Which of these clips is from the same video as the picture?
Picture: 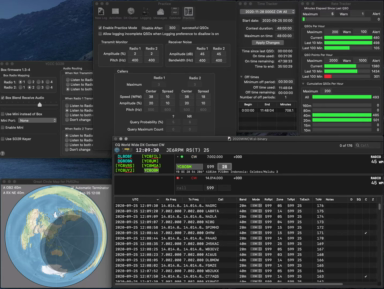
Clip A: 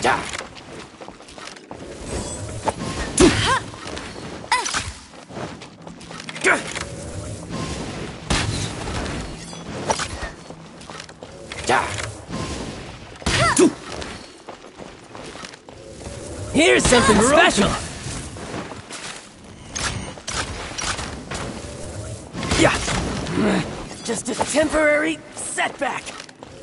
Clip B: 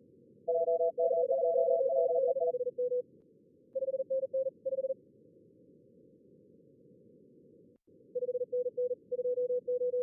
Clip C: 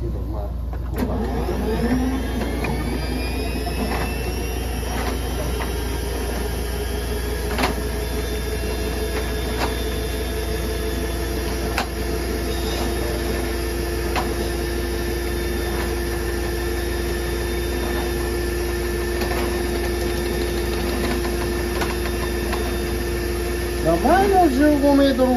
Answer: B